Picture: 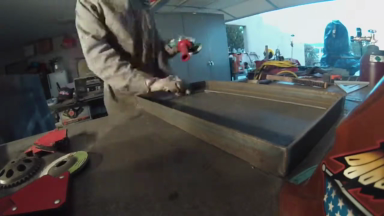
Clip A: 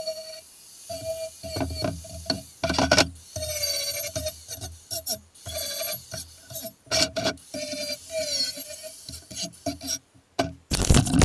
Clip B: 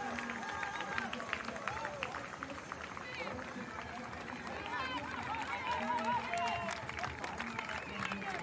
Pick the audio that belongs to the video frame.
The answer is A